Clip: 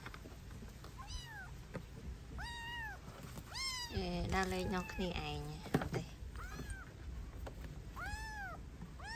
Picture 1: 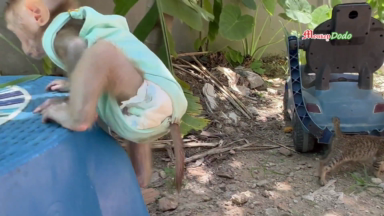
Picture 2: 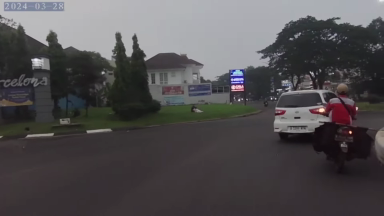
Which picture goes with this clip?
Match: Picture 1